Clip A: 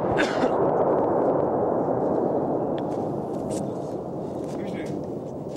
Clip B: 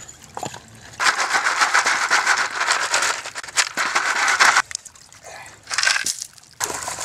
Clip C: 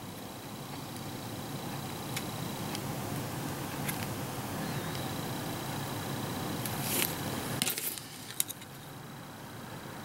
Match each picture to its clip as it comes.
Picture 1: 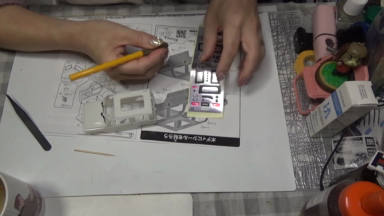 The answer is C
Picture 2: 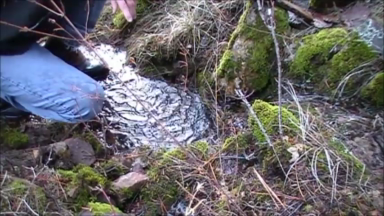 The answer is B